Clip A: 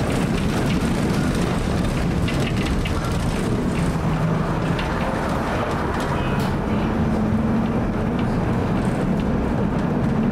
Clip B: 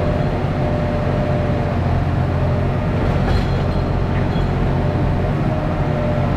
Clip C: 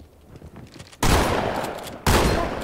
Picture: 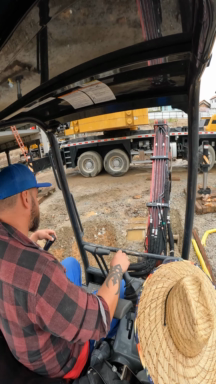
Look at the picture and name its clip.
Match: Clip B